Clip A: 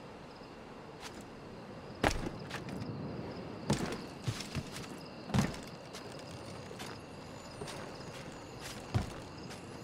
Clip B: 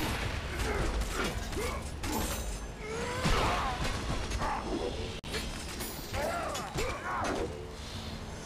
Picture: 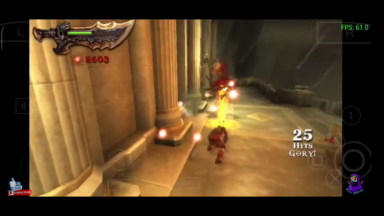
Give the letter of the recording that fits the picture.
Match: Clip B